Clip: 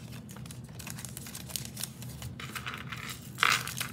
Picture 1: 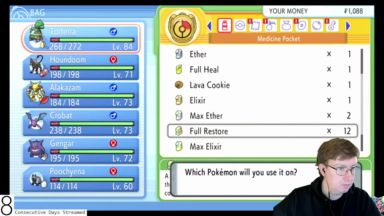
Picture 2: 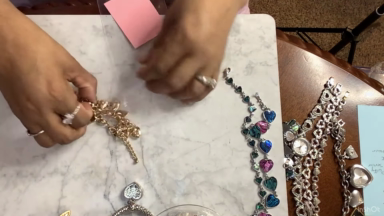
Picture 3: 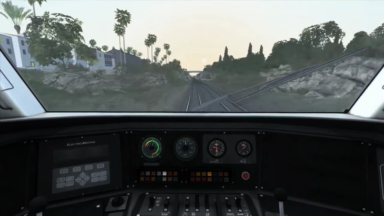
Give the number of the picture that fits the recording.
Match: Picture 2